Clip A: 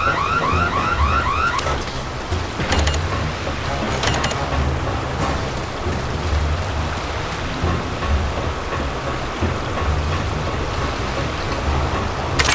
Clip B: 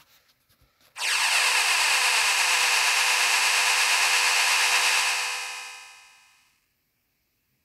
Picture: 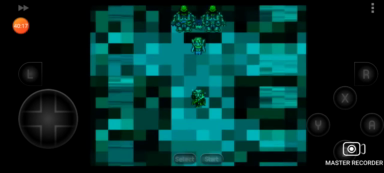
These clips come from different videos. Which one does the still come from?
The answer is B